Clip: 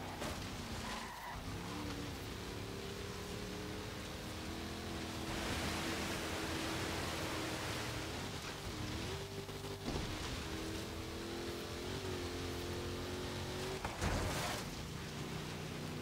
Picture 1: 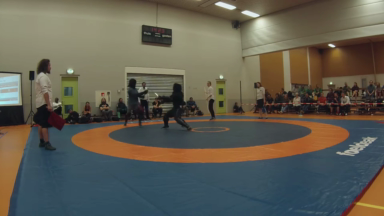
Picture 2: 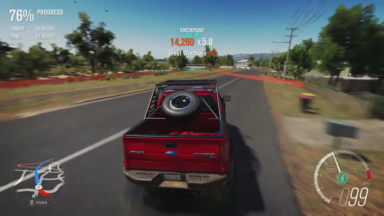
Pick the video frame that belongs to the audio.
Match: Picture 2